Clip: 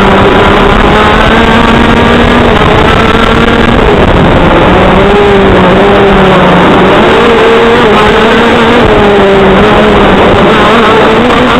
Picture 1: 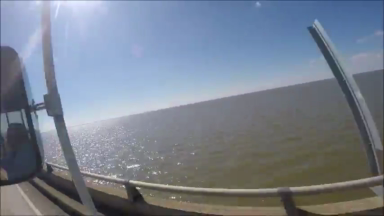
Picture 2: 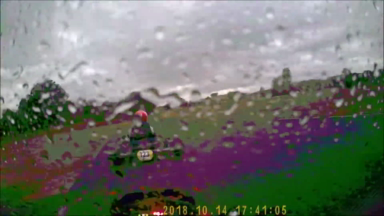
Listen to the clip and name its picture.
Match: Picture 2